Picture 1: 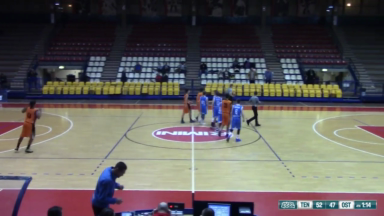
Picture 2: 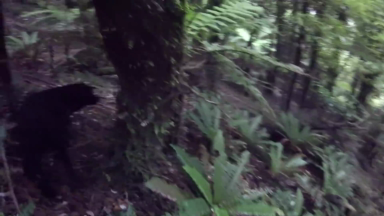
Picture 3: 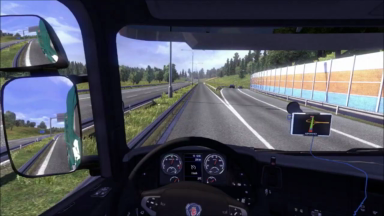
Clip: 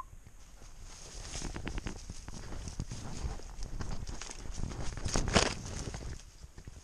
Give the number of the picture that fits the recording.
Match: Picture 2